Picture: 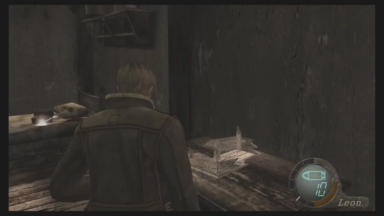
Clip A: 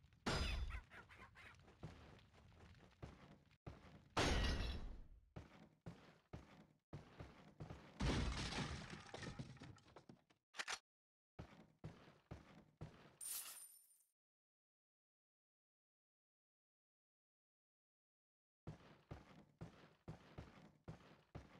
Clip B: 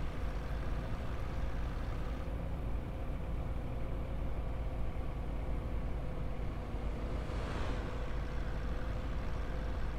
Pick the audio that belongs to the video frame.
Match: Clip A